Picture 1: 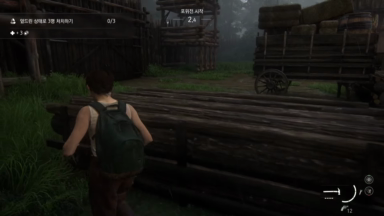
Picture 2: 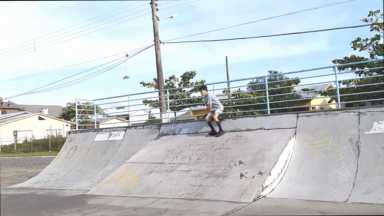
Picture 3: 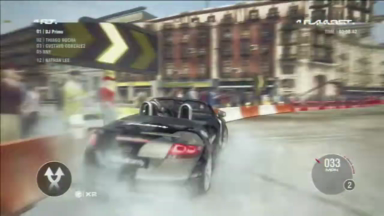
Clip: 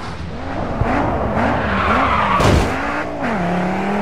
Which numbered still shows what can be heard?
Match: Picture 3